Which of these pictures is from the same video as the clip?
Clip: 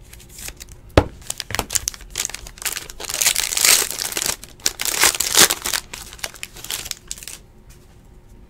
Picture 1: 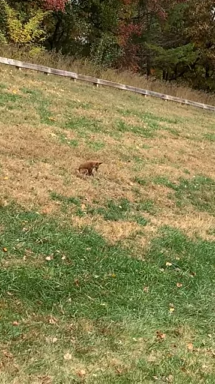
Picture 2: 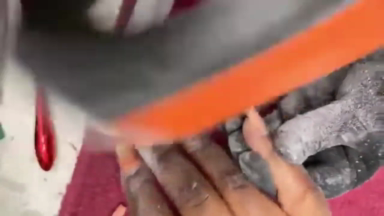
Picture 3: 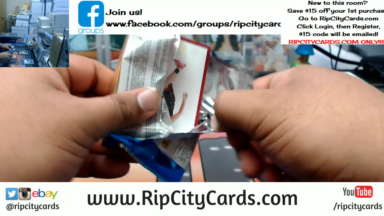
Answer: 3